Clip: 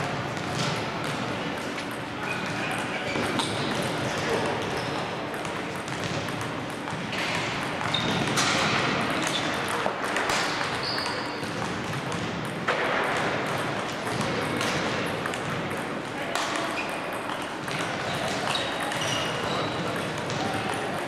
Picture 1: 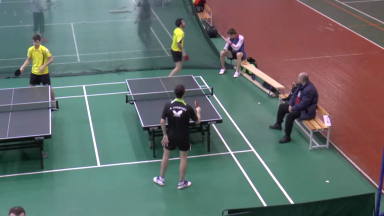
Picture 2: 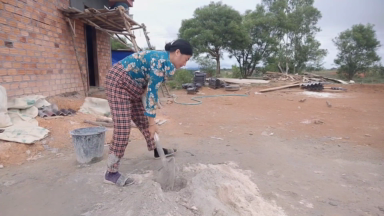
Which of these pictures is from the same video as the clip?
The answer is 1